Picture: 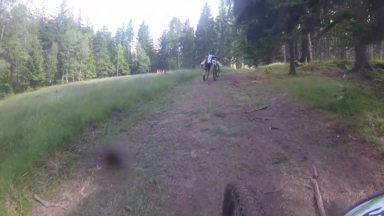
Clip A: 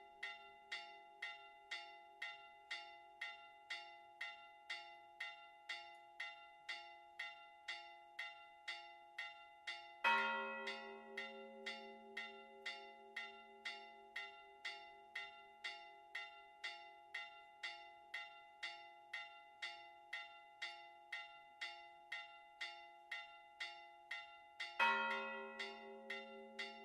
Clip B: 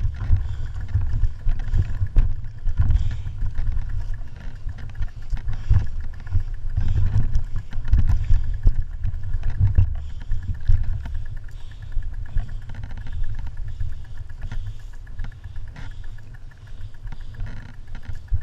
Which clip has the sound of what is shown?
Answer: B